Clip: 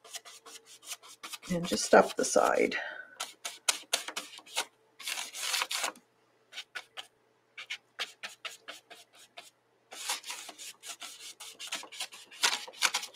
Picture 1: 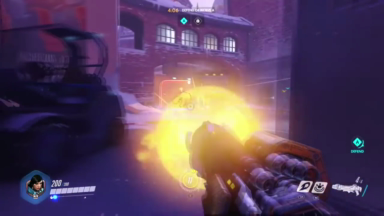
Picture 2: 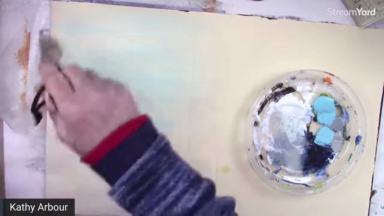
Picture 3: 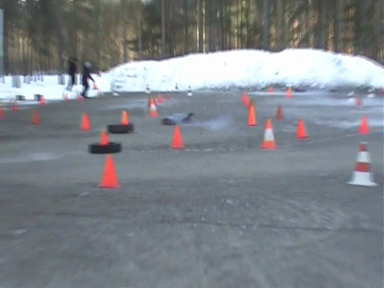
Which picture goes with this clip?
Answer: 2